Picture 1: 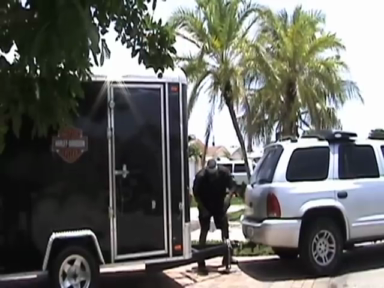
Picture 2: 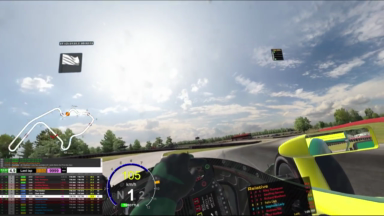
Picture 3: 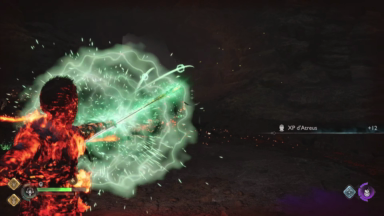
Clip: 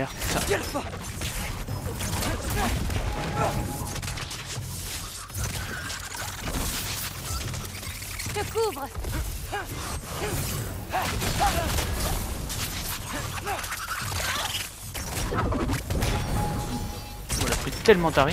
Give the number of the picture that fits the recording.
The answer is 3